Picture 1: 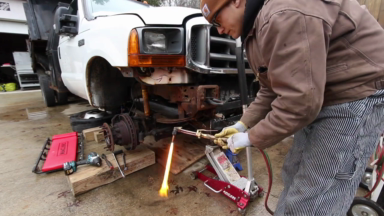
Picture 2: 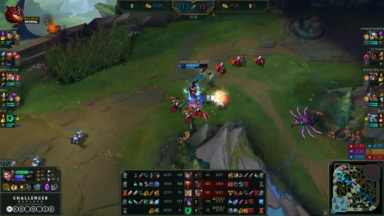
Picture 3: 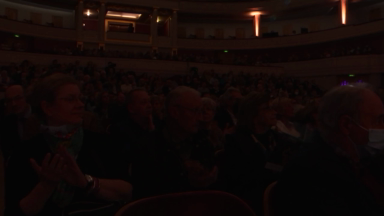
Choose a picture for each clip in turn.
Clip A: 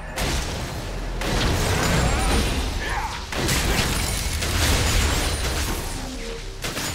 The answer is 2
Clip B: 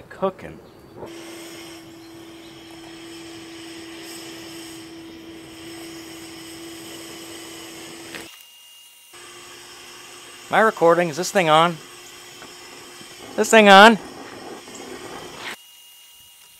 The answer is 1